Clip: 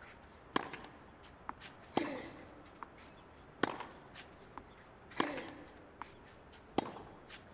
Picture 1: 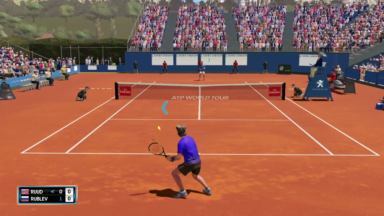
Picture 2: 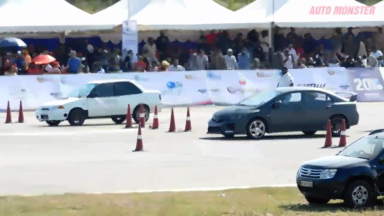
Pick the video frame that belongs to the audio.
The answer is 1